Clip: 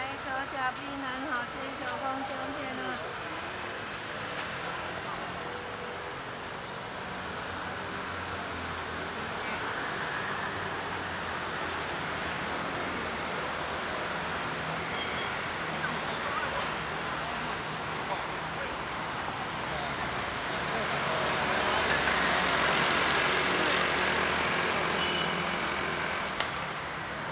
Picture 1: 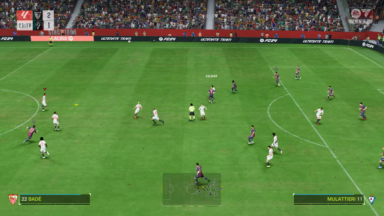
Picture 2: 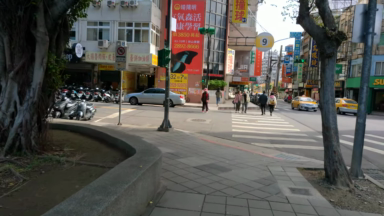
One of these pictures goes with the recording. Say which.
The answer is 2